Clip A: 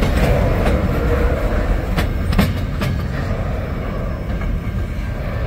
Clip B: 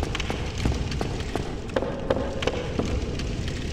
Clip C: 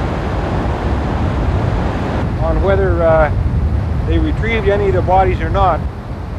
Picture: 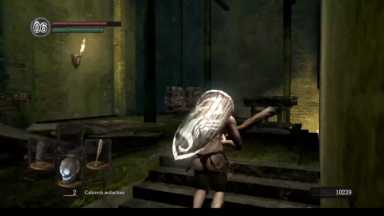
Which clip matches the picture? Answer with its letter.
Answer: B